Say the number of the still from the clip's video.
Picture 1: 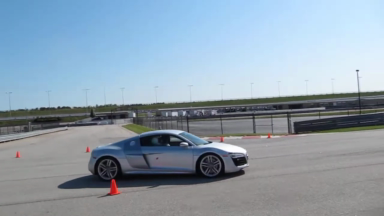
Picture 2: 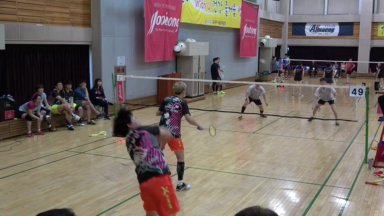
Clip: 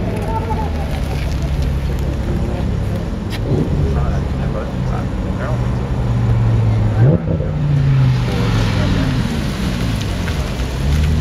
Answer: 1